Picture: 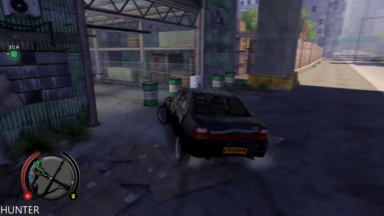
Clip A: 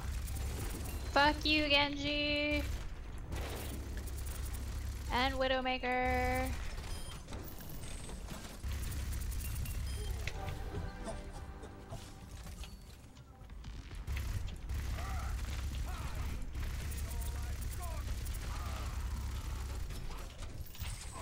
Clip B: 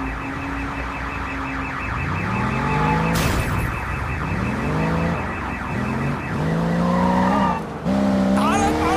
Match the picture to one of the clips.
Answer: B